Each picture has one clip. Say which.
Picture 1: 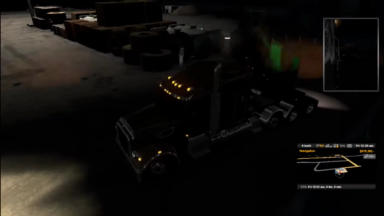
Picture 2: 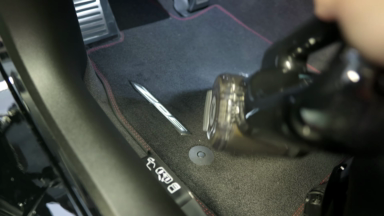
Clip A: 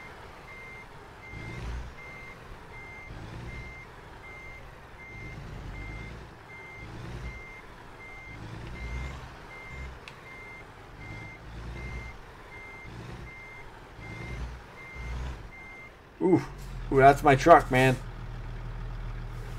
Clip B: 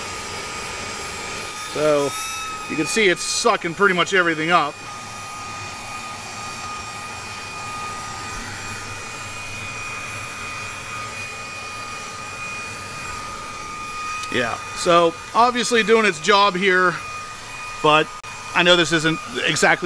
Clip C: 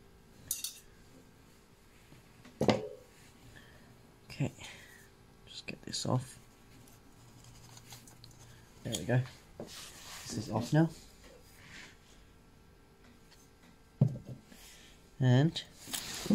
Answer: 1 A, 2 B